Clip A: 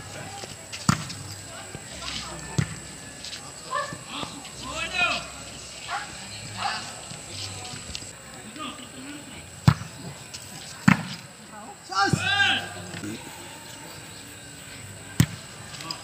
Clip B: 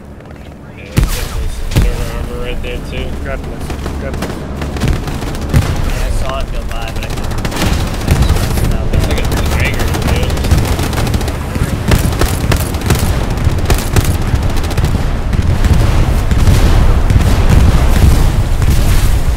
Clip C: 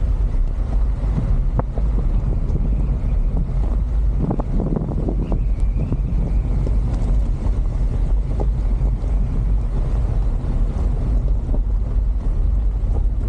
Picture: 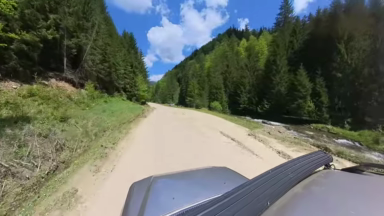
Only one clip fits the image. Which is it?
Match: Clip C